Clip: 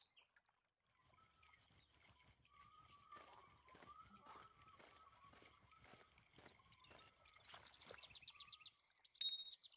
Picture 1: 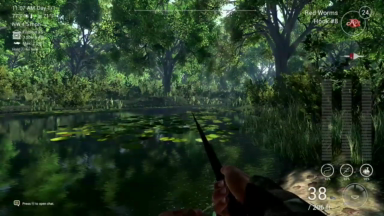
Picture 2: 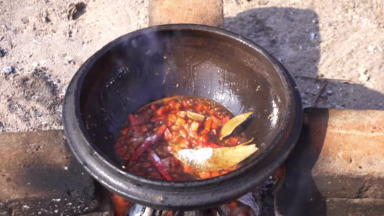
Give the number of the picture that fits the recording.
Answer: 1